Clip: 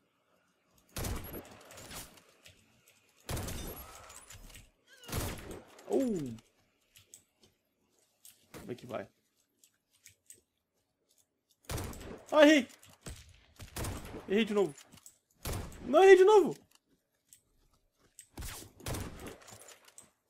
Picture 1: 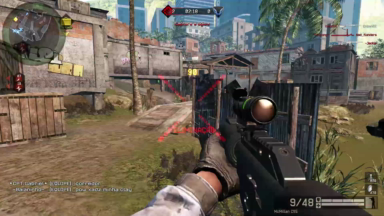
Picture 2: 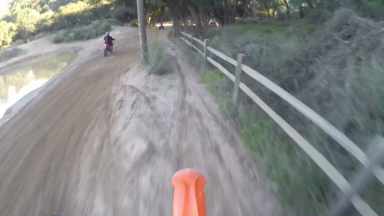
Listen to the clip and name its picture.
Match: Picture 1